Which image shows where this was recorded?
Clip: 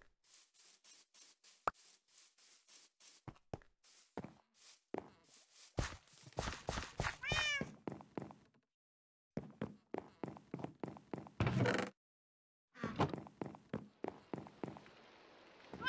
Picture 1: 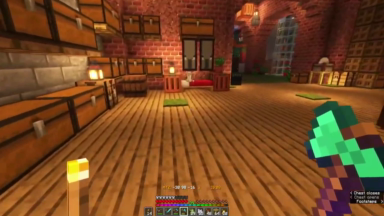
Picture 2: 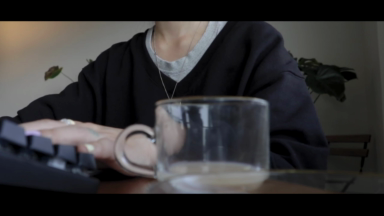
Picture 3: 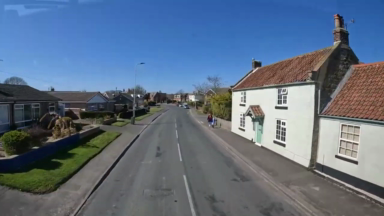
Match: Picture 1